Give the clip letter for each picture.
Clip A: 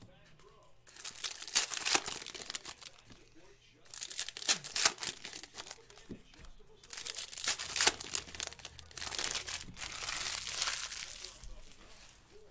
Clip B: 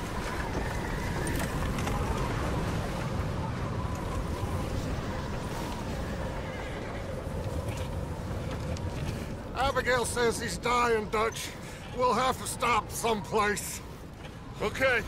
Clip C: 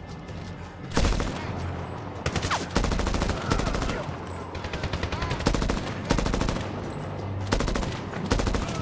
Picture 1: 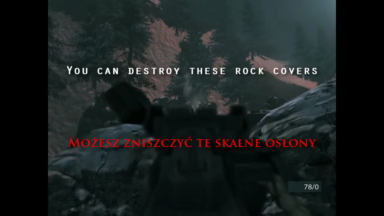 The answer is C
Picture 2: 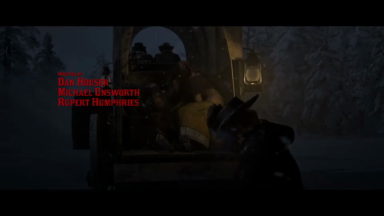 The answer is B